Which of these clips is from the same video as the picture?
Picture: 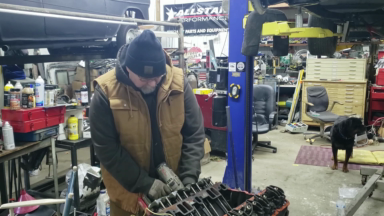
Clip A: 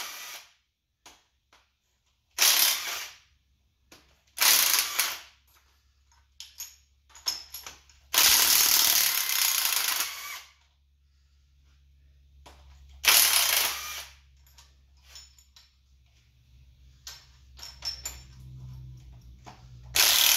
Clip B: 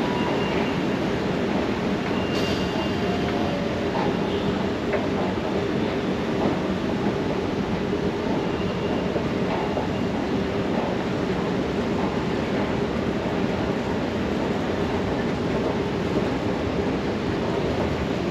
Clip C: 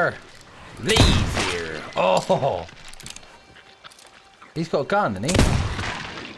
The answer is A